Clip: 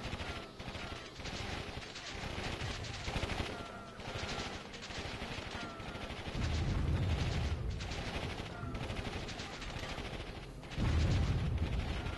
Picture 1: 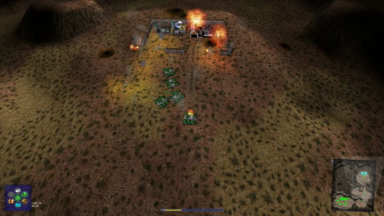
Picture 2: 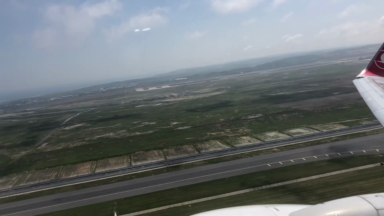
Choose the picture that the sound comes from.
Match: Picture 1